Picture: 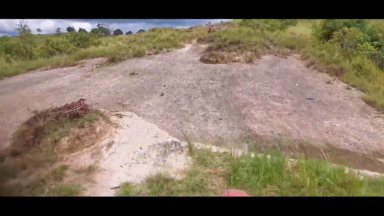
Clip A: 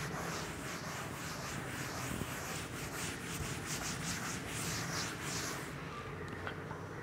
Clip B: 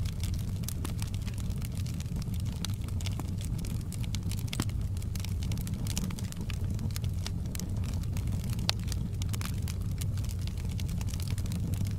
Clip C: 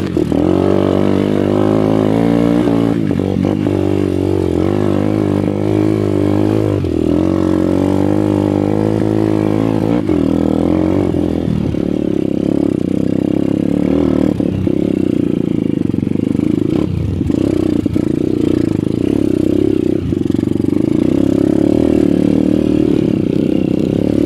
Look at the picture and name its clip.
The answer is C